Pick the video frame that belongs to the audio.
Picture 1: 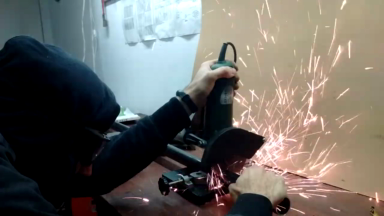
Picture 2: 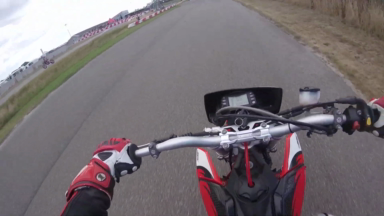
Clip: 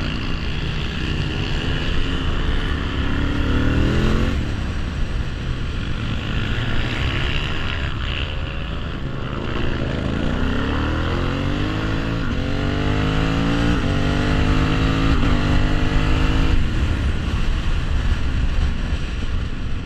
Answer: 2